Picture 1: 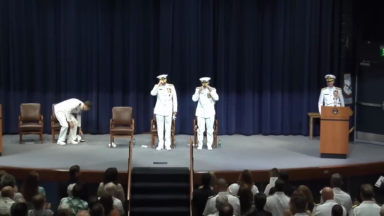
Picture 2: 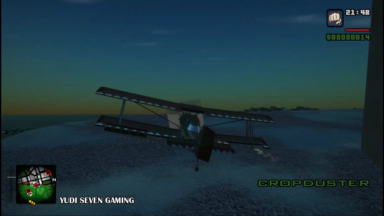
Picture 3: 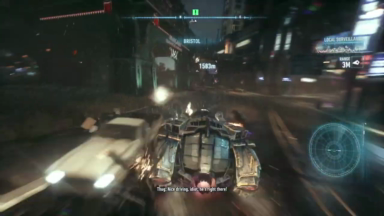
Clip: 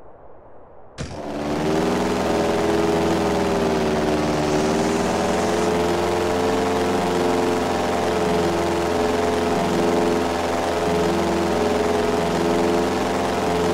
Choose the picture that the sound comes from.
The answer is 2